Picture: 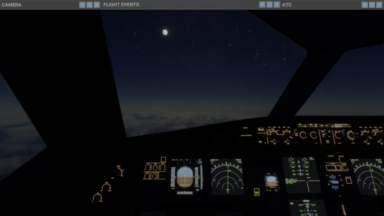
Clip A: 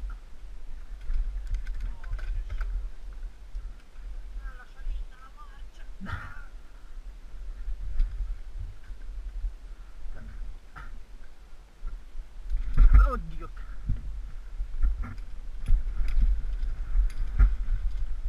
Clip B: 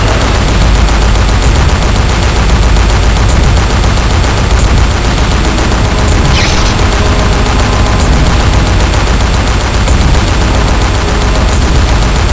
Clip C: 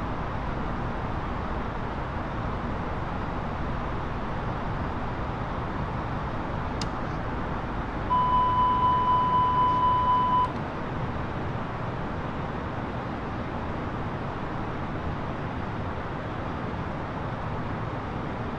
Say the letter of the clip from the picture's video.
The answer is C